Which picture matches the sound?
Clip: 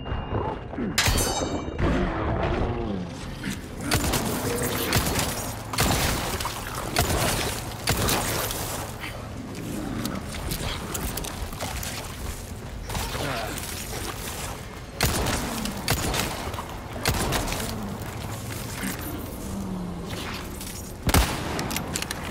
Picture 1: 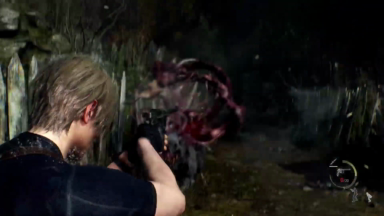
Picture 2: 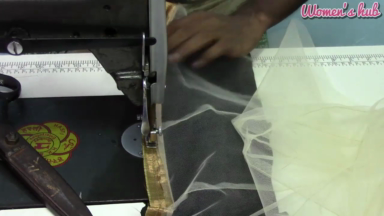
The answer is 1